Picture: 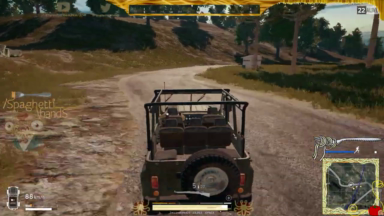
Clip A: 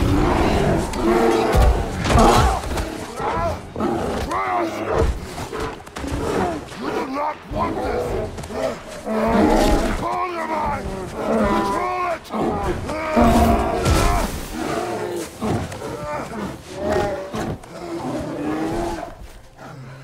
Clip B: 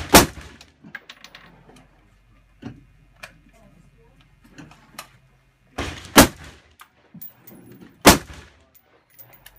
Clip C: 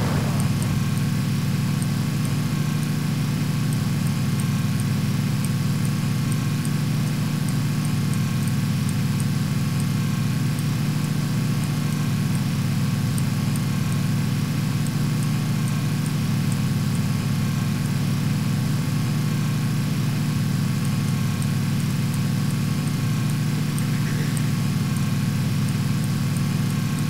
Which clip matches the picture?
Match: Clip C